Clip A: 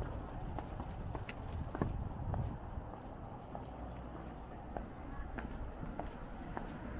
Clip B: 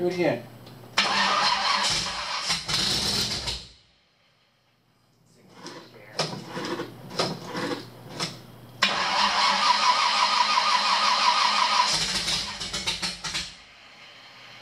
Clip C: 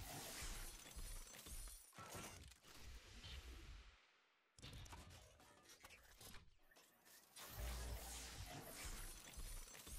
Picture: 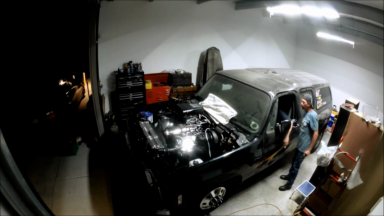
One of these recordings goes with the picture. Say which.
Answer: B